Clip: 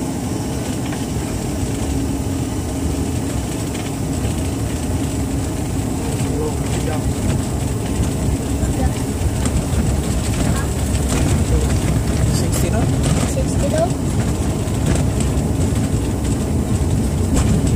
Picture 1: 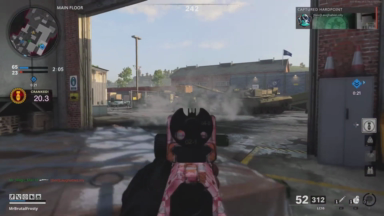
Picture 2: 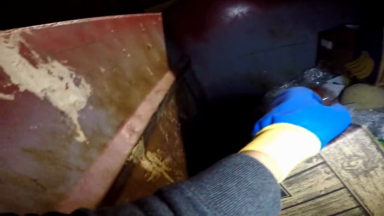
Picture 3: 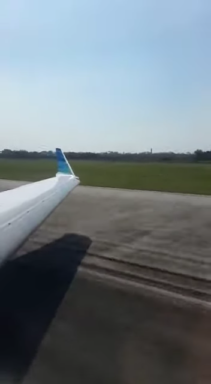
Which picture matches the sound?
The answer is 3